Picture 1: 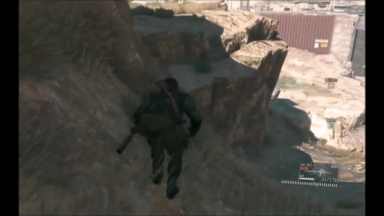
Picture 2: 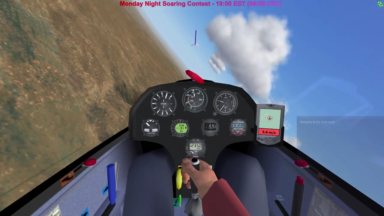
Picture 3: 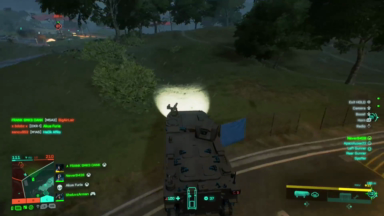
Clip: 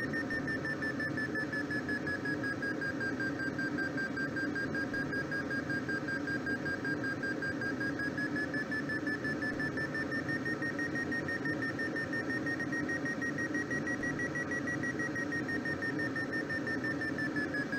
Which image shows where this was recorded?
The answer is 2